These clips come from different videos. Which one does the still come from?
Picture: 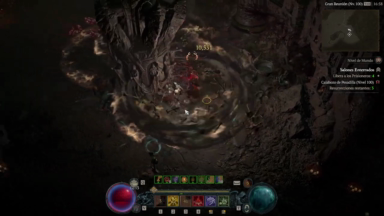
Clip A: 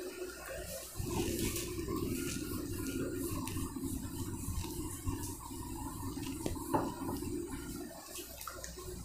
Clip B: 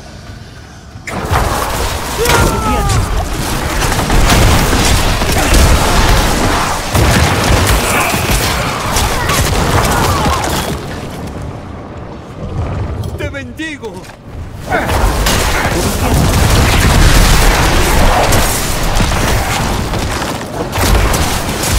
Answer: B